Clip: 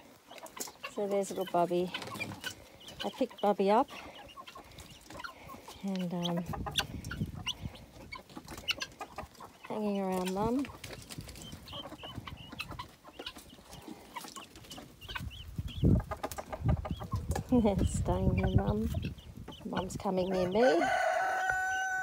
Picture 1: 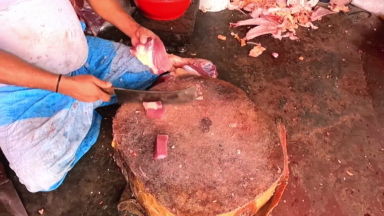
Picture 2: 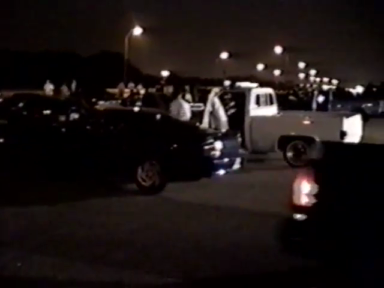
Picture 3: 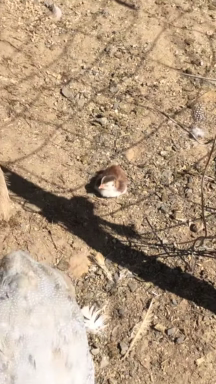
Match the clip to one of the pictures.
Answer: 3